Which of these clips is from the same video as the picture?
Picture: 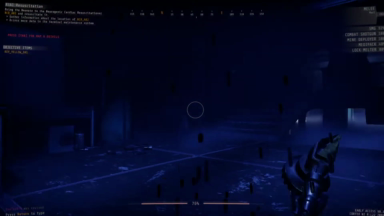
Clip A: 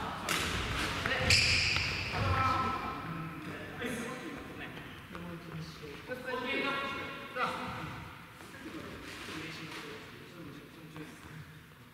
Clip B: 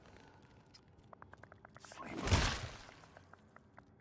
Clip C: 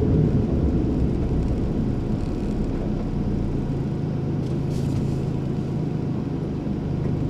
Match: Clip B